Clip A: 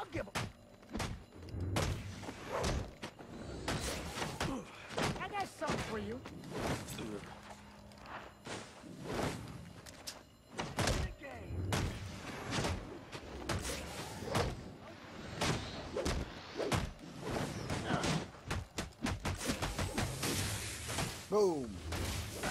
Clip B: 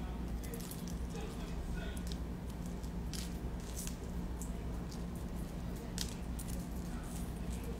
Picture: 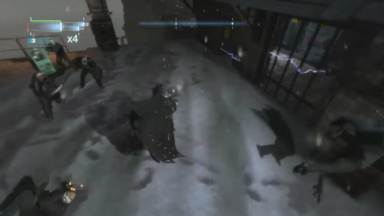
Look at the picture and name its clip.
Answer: A